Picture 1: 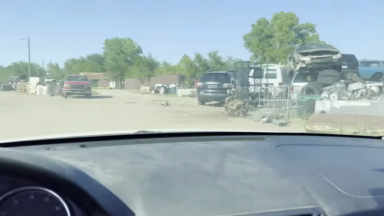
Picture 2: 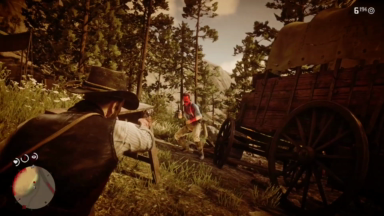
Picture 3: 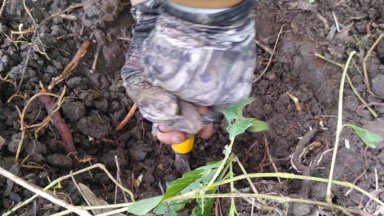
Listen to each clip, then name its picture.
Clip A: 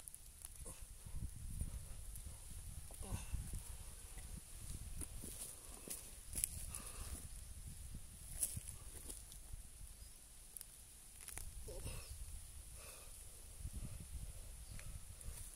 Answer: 3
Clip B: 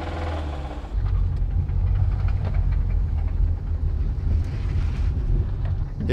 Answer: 1